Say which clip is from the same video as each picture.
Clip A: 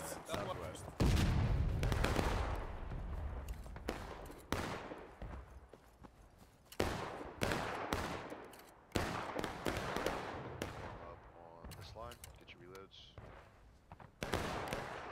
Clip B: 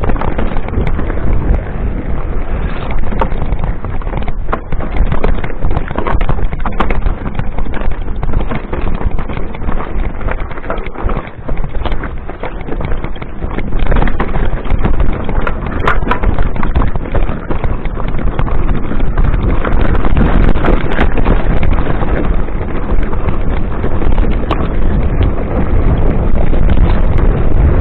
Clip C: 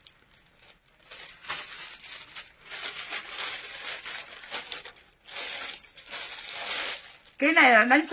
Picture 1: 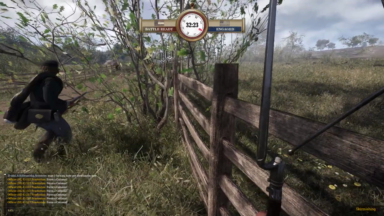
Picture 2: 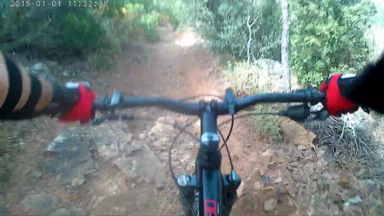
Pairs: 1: A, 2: B